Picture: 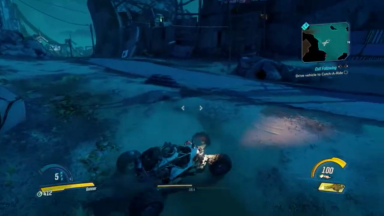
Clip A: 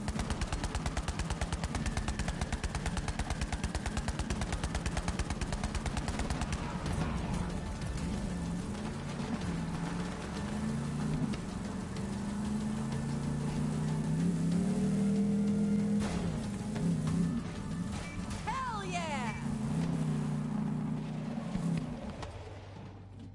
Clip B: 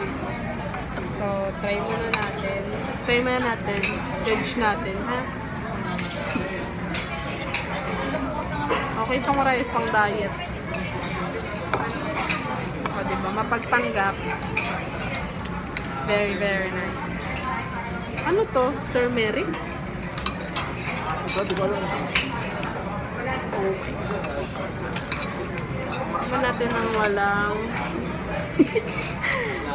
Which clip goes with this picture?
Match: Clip A